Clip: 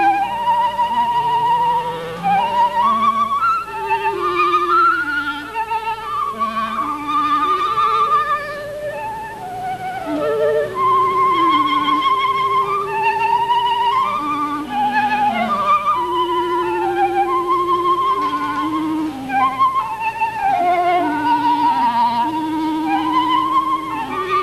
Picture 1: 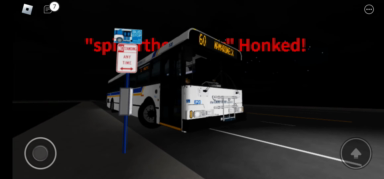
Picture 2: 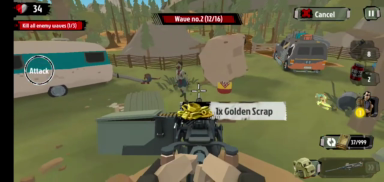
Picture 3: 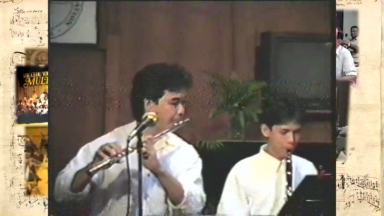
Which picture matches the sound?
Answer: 3